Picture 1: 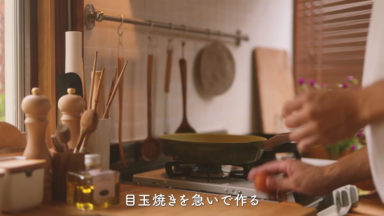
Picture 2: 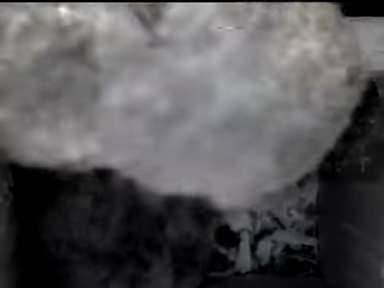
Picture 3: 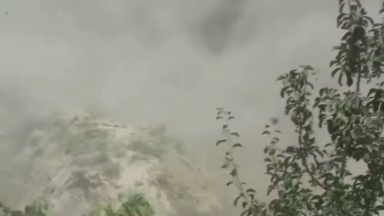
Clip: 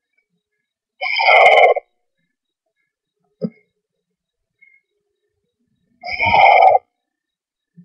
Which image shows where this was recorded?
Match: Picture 2